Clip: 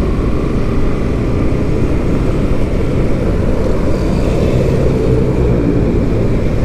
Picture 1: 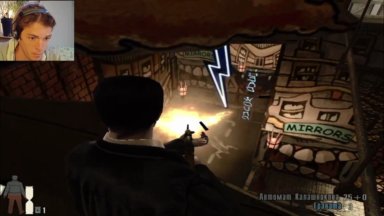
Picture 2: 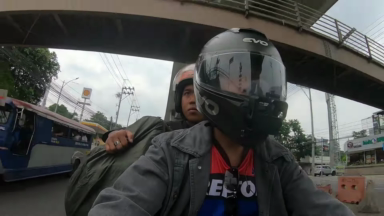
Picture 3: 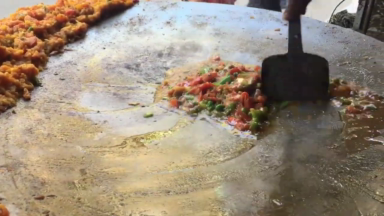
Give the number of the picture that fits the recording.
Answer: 2